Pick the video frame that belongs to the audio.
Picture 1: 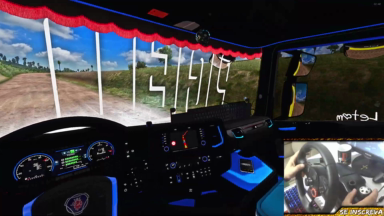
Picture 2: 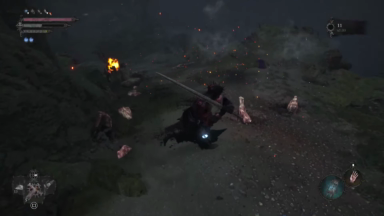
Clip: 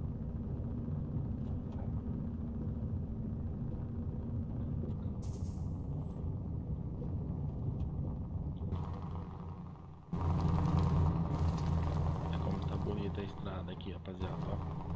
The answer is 1